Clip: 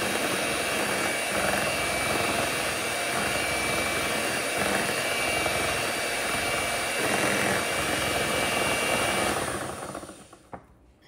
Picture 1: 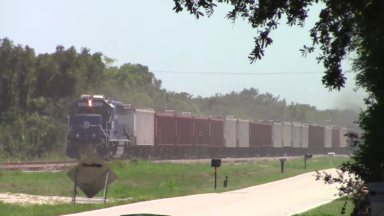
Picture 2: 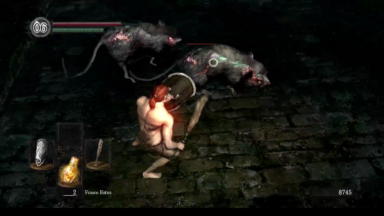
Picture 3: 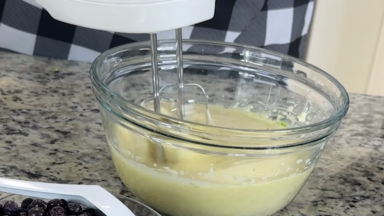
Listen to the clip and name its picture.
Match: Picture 3